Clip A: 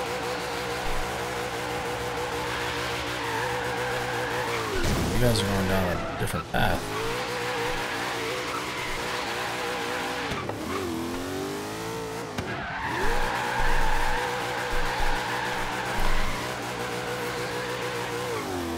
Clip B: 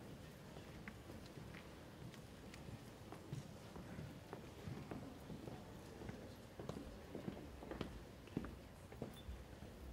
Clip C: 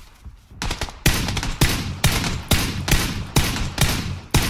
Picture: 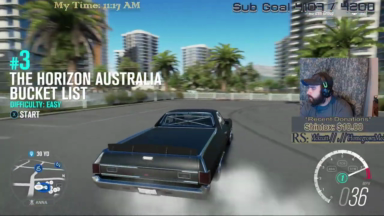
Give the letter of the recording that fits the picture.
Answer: A